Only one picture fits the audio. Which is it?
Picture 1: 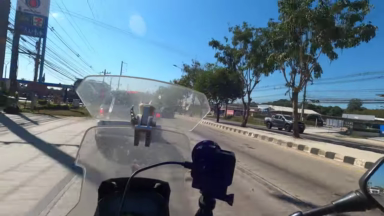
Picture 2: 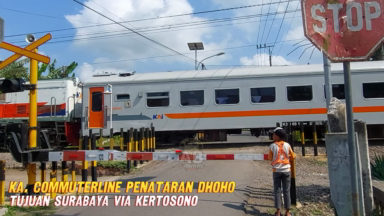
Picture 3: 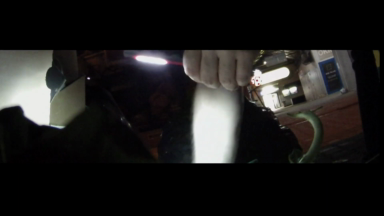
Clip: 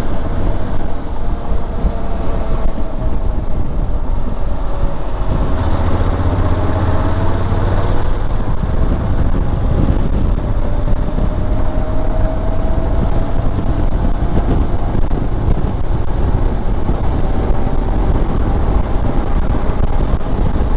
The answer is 1